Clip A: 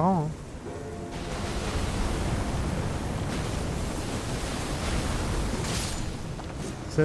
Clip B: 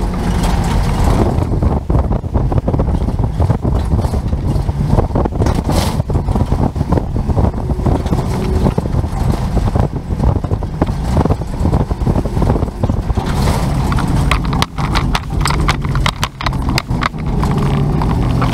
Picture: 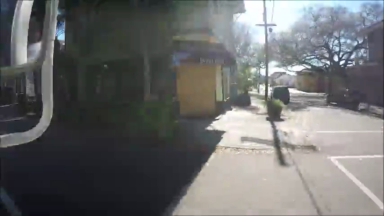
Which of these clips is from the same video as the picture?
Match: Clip B